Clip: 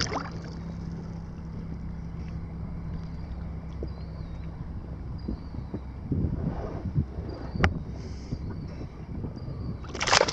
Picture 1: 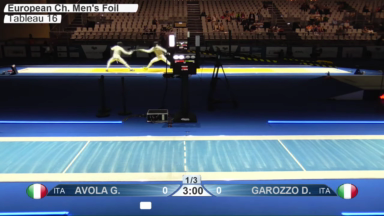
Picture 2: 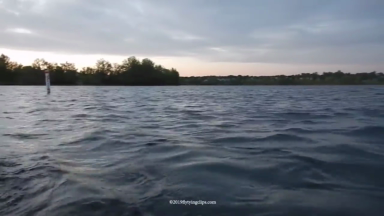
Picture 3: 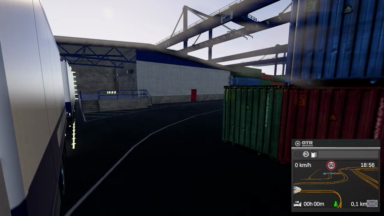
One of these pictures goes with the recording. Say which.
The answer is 2